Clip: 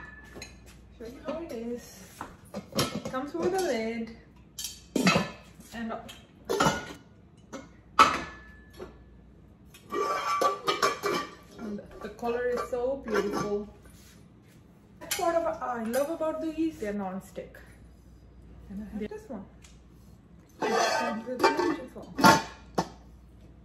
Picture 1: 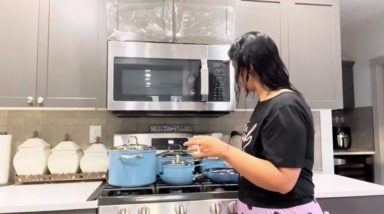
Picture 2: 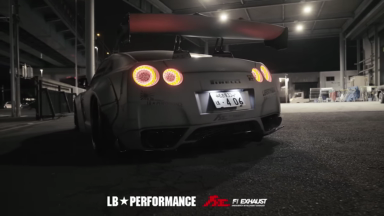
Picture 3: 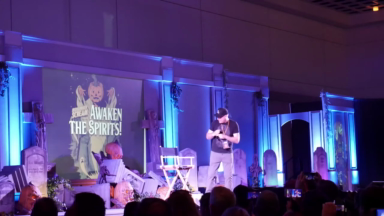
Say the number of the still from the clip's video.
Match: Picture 1